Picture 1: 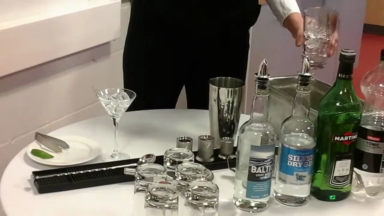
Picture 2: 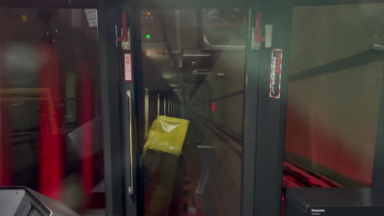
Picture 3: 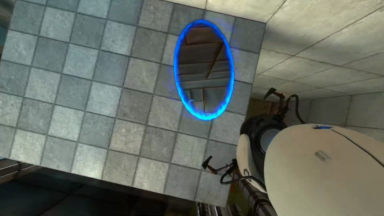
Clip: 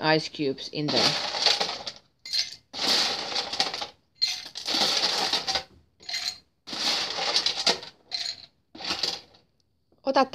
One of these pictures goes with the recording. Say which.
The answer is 1